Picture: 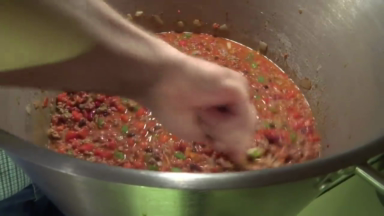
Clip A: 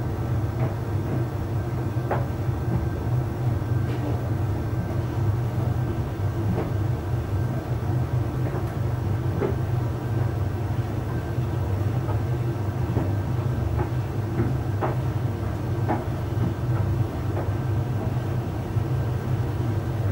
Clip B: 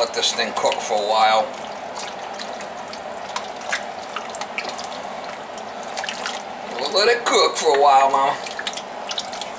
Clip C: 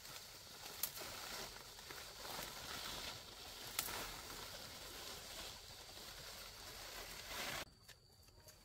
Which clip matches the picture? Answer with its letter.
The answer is B